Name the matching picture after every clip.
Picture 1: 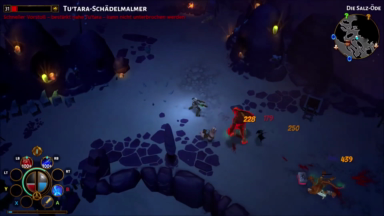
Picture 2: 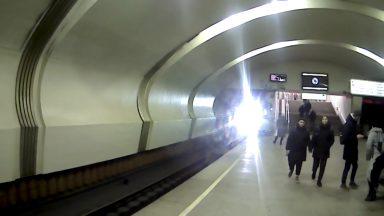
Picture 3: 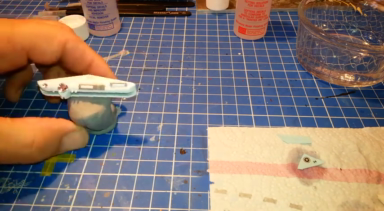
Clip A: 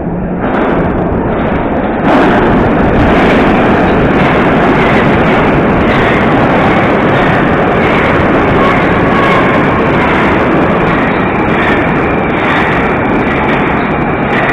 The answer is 2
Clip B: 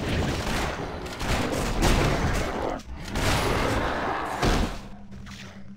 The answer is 1